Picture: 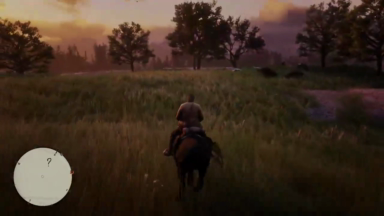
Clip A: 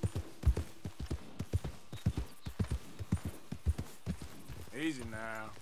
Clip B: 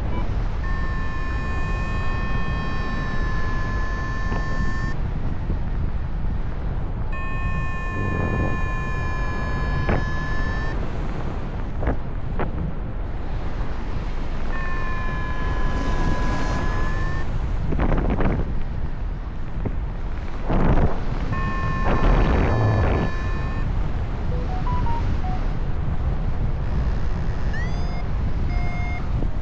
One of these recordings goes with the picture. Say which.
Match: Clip A